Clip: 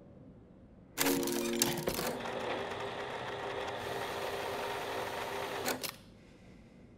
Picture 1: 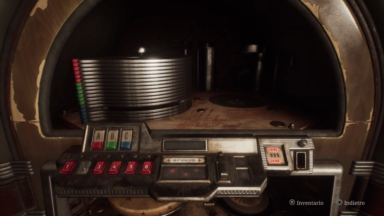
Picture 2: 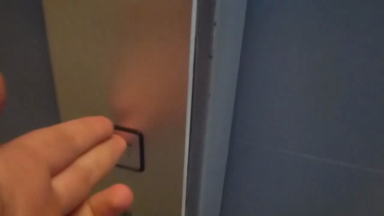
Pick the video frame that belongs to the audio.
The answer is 1